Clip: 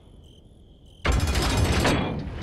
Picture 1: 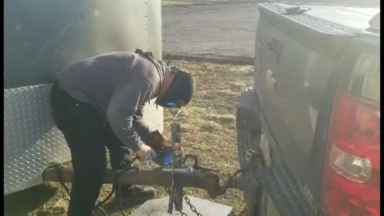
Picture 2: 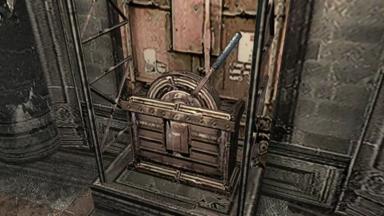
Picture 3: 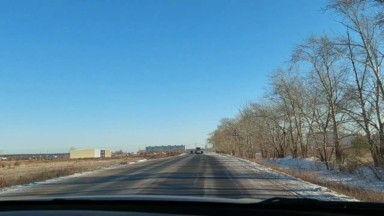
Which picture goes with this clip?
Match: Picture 2